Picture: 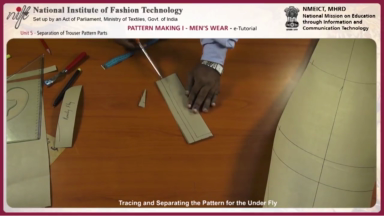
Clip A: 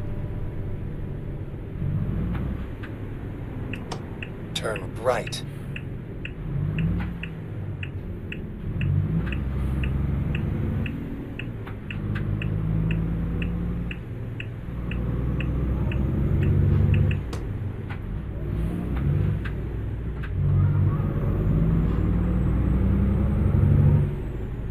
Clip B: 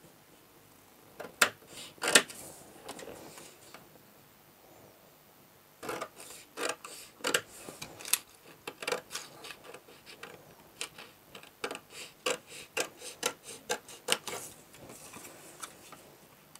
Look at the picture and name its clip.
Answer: B